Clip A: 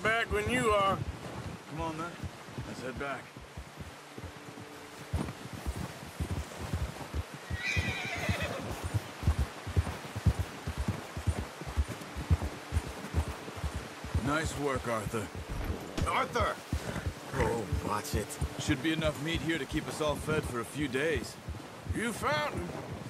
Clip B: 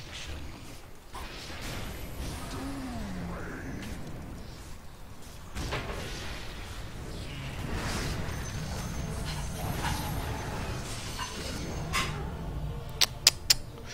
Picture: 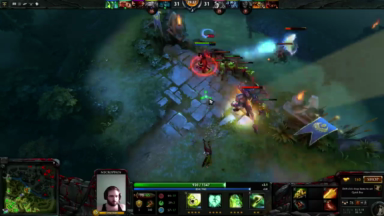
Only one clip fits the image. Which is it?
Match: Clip B